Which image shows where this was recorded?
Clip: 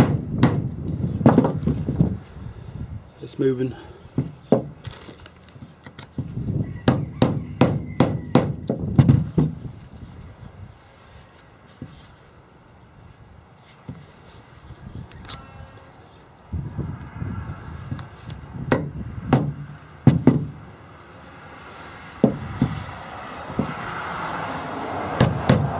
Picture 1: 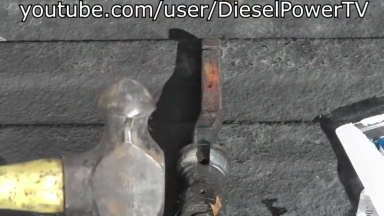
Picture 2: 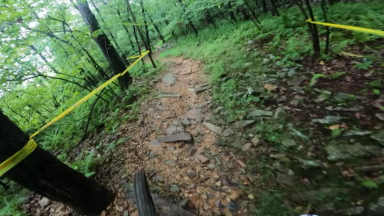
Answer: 1